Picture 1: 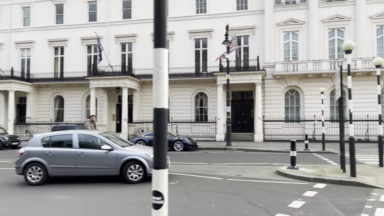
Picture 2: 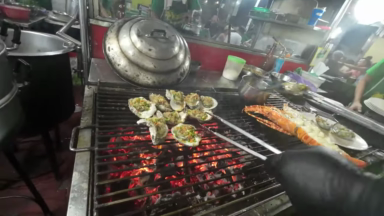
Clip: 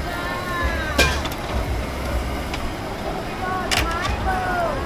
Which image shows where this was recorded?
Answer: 2